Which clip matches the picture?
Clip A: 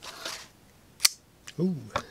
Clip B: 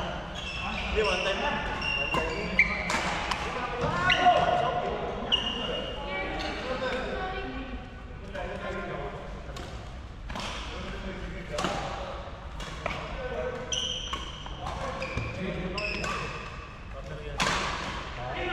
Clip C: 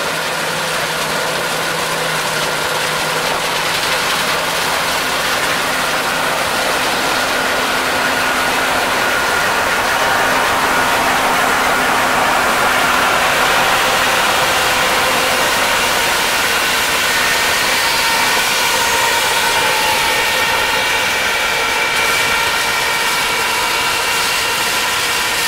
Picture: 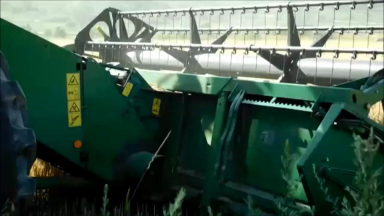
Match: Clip C